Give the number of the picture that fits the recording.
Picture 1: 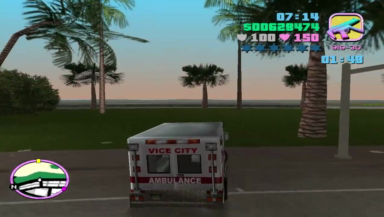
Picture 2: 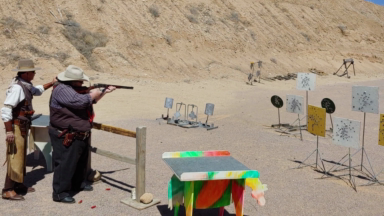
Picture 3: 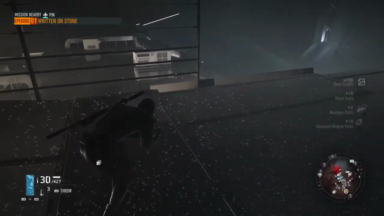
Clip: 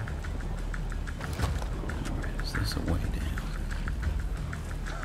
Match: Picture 3